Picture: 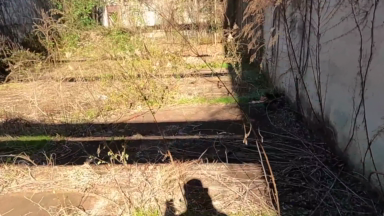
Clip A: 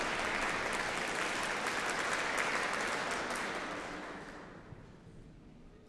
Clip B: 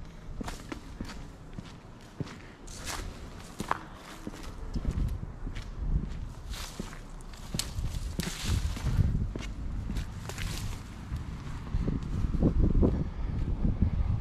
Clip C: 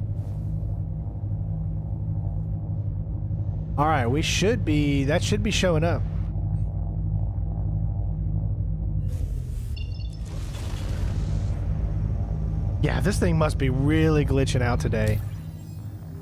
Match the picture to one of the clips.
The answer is B